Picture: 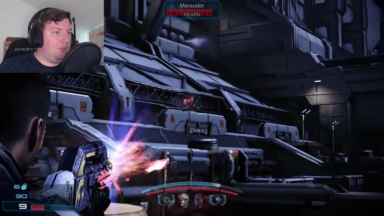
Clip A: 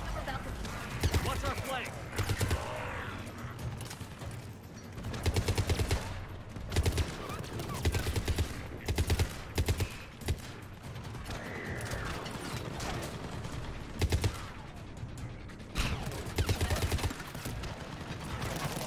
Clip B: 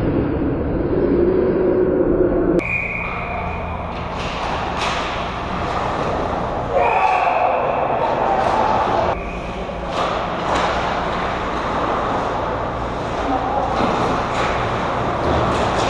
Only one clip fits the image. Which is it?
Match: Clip A